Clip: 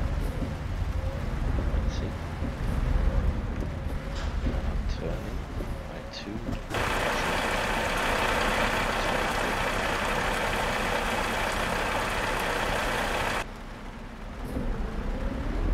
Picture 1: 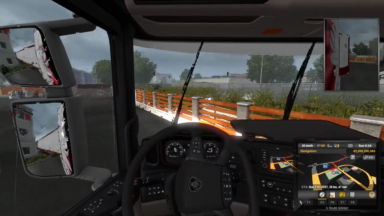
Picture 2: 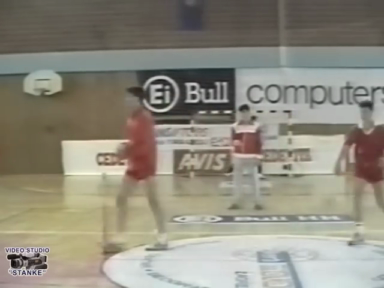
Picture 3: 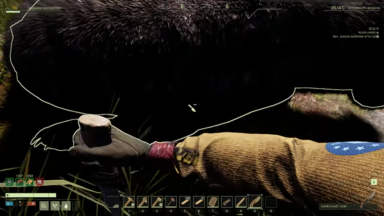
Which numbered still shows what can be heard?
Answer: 1